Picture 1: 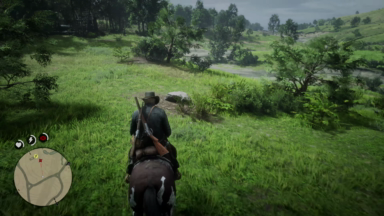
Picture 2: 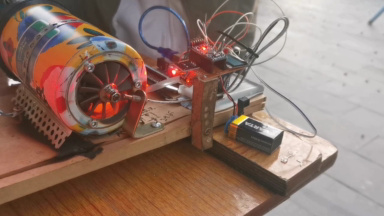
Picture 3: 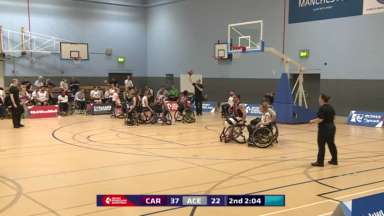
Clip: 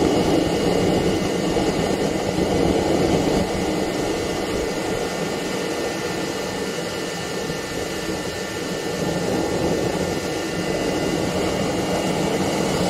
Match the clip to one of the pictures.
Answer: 2